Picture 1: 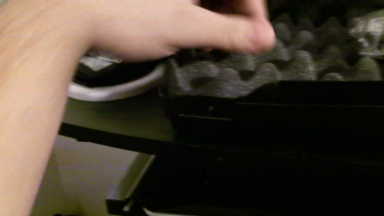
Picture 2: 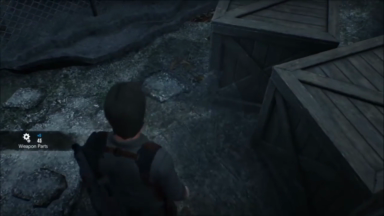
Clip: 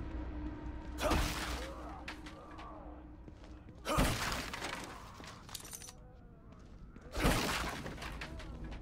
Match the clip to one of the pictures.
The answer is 2